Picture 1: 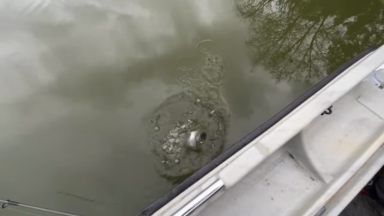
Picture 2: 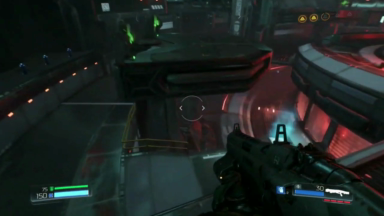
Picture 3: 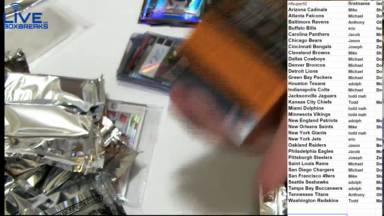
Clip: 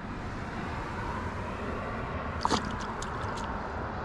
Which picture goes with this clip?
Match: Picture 1